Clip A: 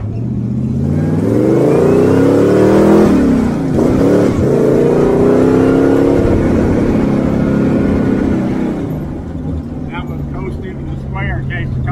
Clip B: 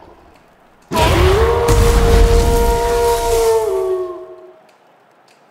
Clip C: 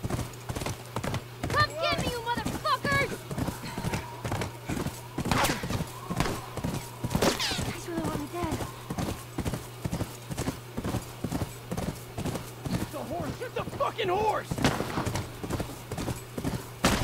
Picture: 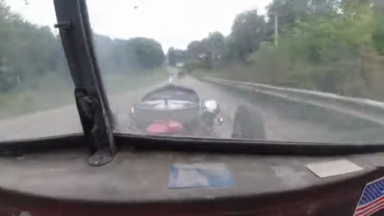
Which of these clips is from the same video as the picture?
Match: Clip A